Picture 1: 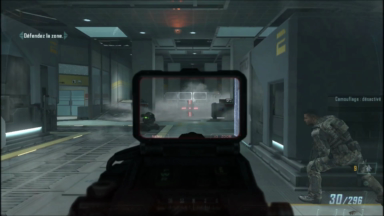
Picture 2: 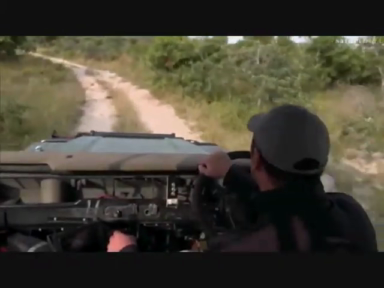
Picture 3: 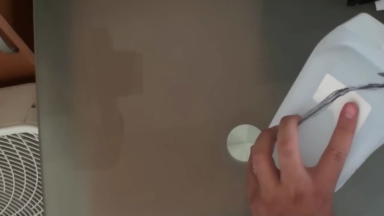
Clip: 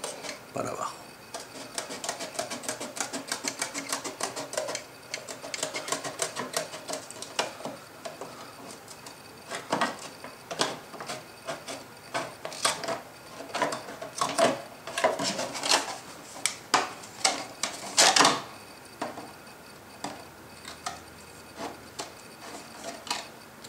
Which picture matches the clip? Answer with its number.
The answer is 3